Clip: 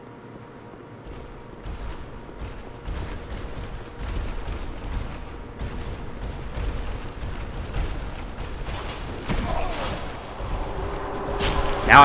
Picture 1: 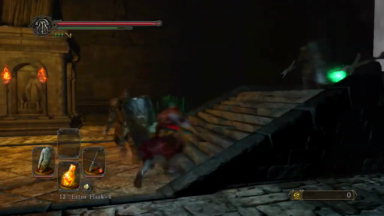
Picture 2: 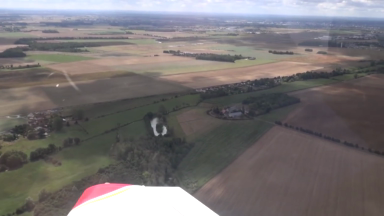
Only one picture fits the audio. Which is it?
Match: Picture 1